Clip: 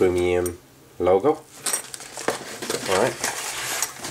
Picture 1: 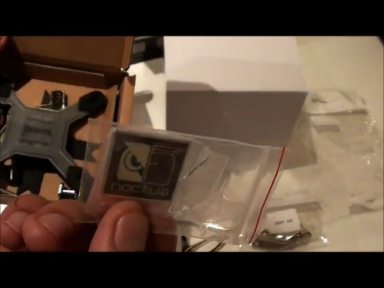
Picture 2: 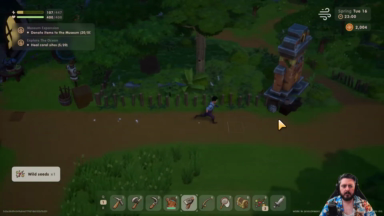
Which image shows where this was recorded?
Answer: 1